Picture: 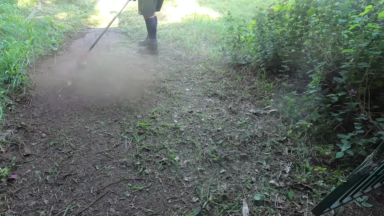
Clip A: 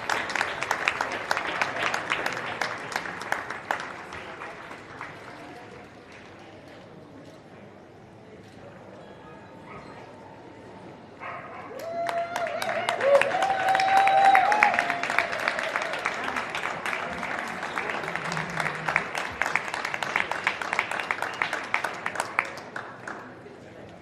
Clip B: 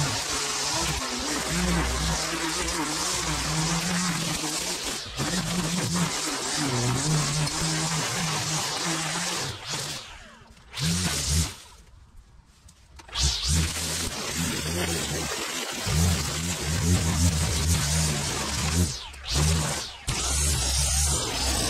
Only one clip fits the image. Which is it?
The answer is B